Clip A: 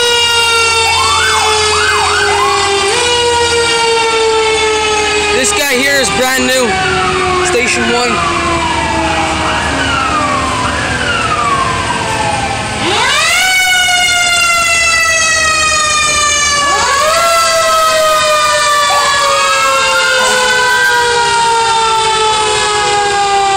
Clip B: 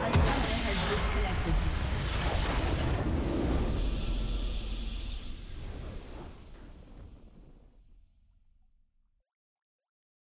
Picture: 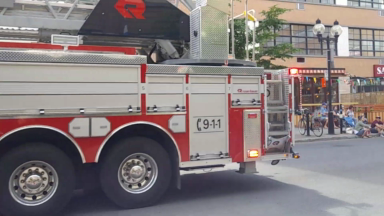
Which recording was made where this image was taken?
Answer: A